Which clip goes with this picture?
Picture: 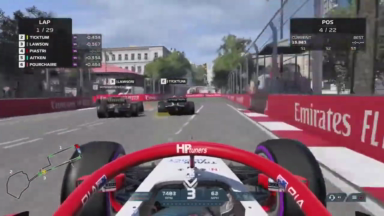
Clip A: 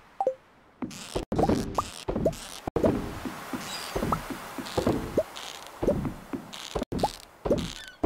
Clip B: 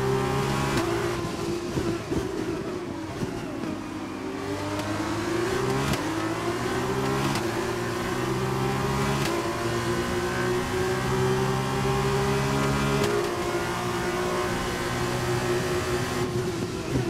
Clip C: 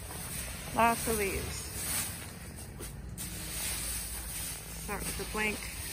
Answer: B